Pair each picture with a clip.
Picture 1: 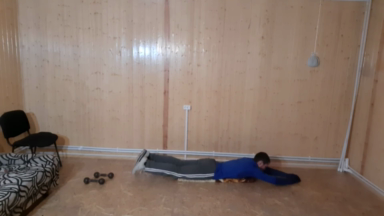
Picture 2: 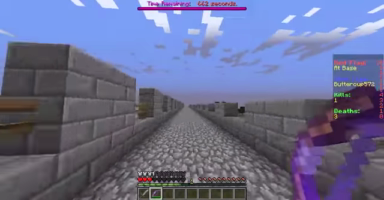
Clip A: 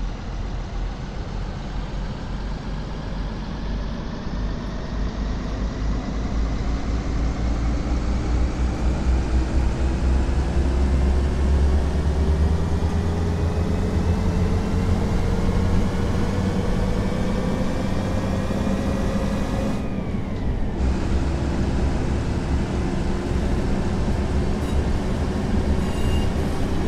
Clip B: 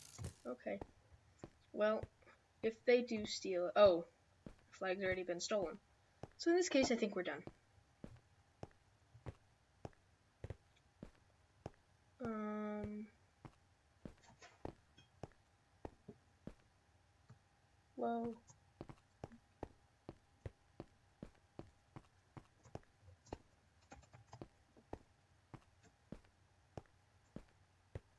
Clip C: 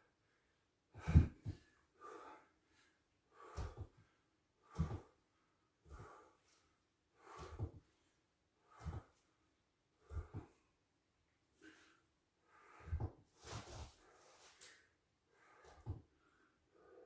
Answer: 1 C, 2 B